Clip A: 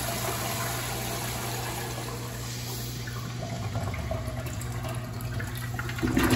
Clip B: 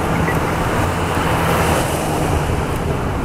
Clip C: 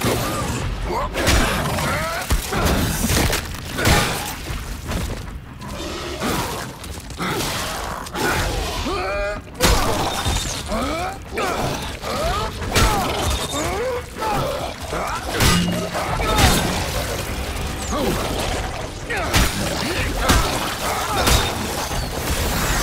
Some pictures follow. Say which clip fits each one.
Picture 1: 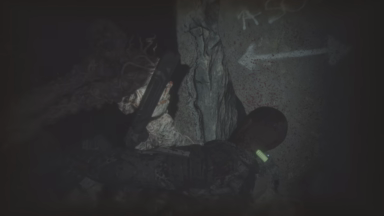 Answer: C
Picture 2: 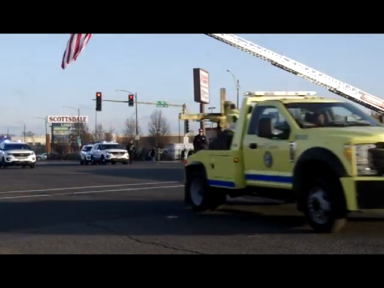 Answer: B